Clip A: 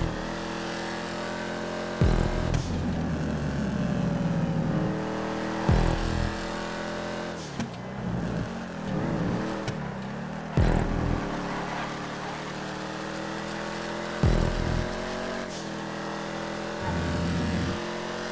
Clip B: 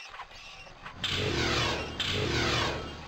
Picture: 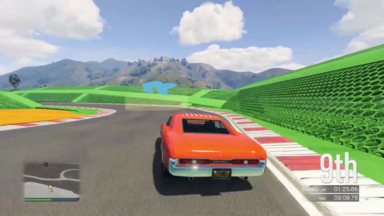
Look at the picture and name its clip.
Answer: A